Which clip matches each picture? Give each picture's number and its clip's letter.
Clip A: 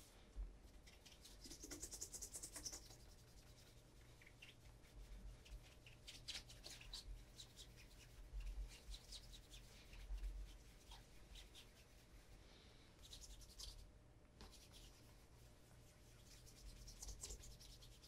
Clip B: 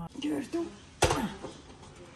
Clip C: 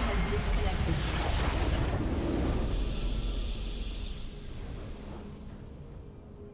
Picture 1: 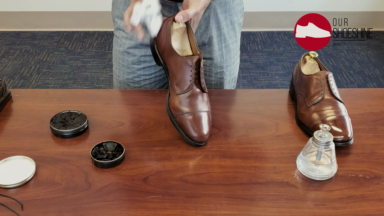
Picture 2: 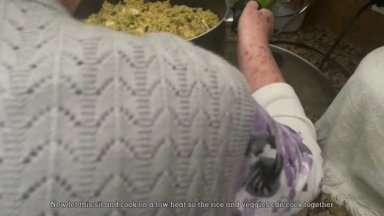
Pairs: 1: A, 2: B